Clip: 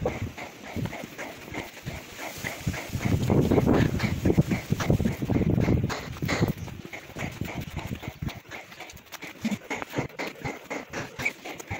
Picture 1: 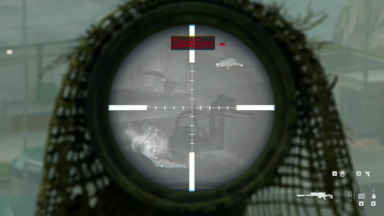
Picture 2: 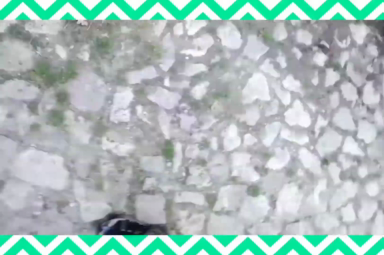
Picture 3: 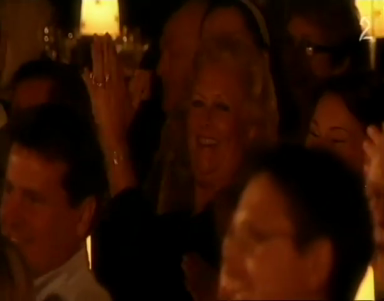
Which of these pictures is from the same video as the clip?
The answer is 2